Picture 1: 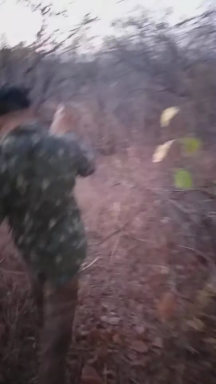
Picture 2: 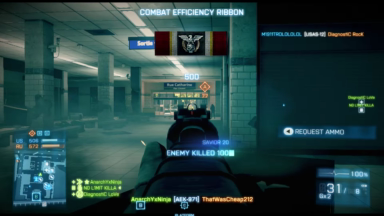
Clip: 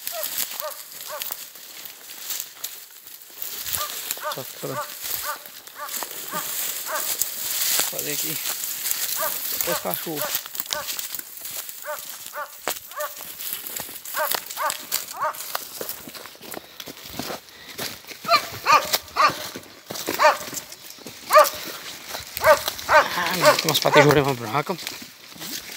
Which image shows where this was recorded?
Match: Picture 1